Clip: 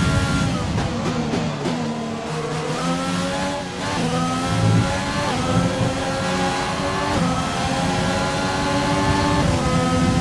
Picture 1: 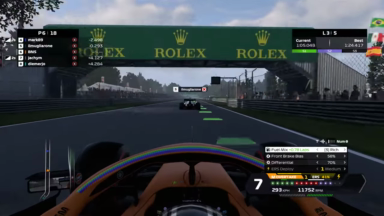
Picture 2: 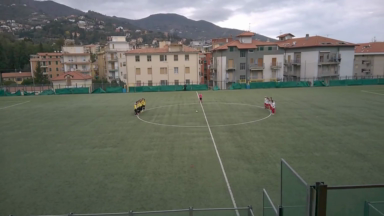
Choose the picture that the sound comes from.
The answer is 1